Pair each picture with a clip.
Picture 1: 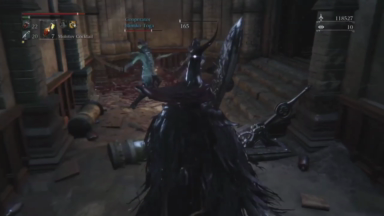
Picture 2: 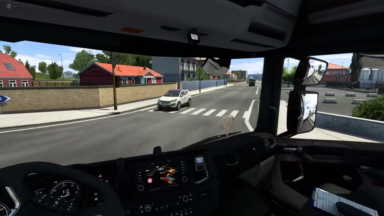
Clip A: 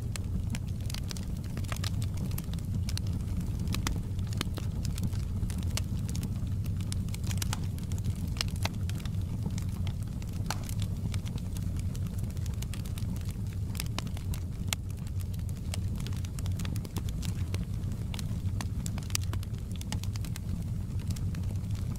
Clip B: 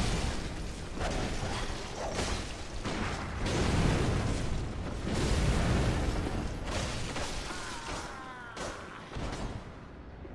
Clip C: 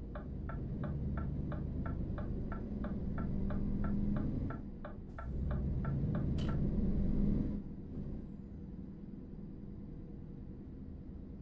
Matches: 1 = B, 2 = C